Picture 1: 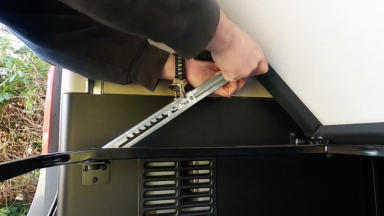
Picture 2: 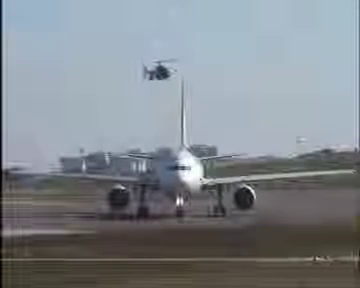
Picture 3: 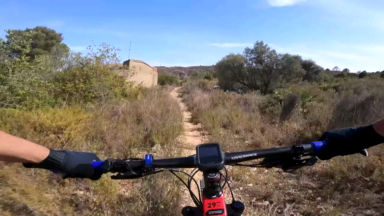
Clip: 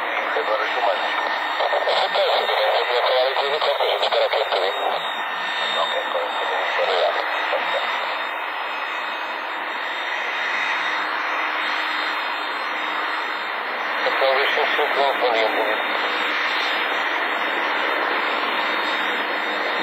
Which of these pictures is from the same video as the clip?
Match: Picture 2